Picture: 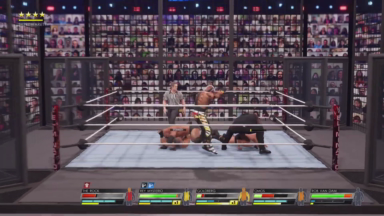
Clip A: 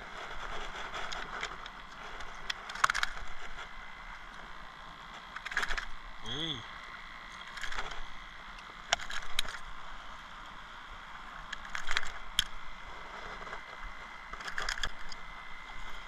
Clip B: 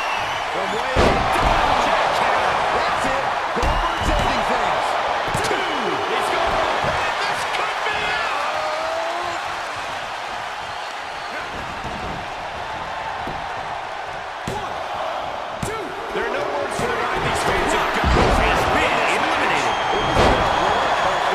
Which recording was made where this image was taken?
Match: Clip B